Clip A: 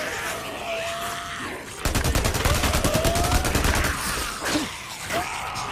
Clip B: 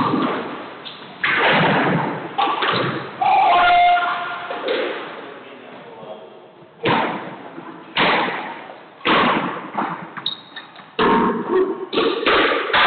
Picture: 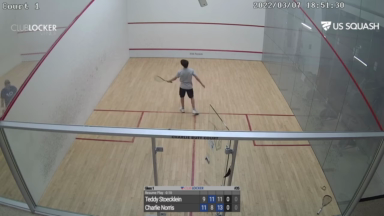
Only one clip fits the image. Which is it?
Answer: B